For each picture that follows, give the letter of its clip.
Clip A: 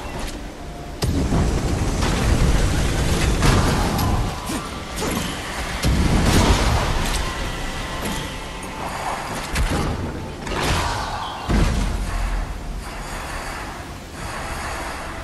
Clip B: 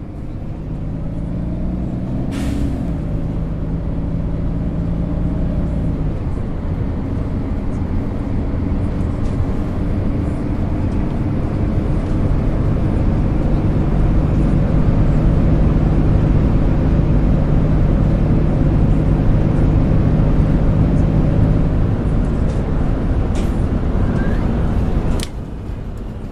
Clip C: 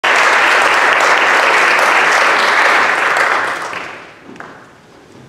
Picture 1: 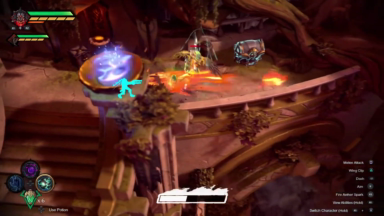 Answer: A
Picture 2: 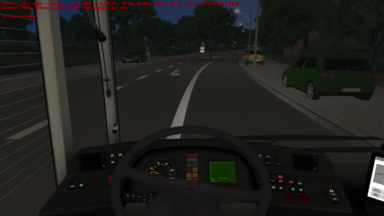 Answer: B